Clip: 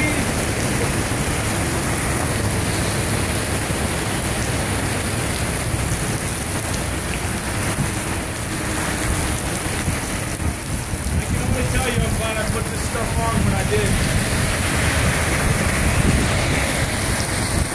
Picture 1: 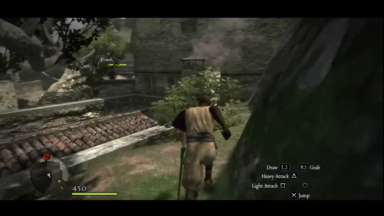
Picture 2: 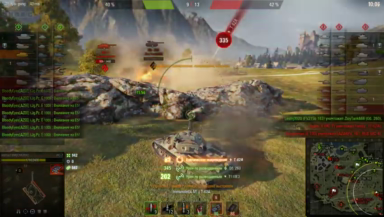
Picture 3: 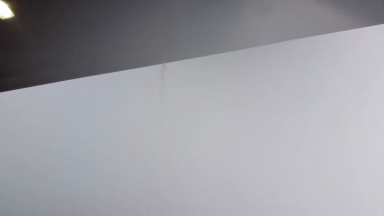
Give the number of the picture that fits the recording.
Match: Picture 3